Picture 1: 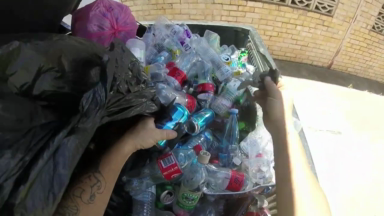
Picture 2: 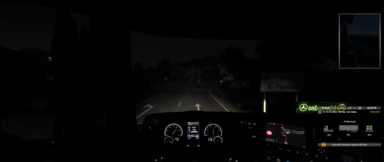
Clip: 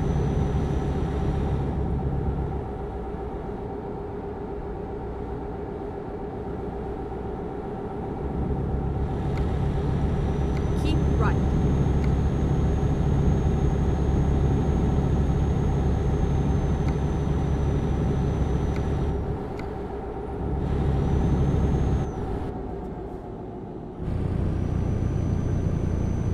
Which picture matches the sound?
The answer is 2